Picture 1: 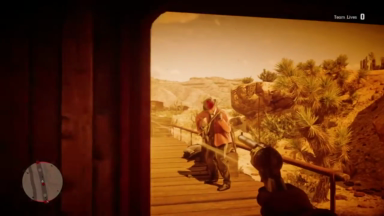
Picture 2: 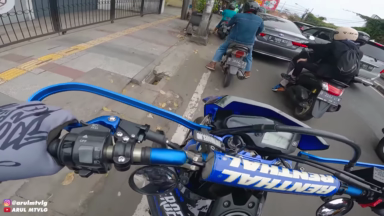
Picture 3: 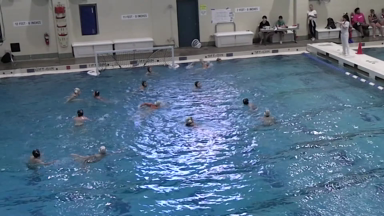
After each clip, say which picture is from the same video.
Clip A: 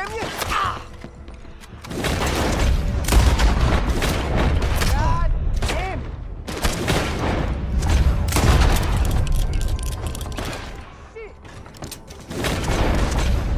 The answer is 1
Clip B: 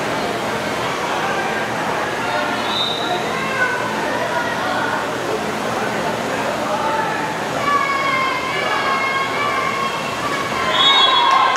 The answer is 3